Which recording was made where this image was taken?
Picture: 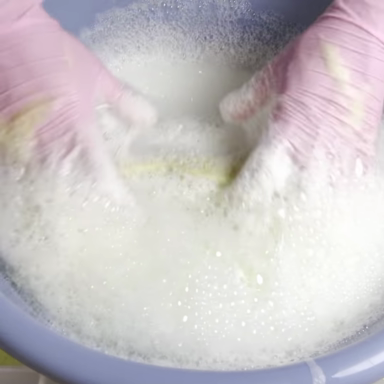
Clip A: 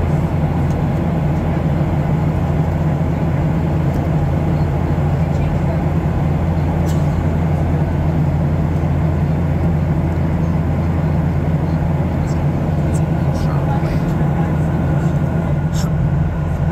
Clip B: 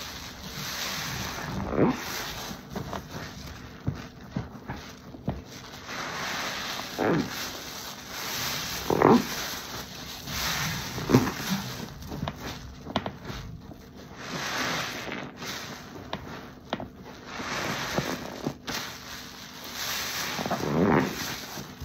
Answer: B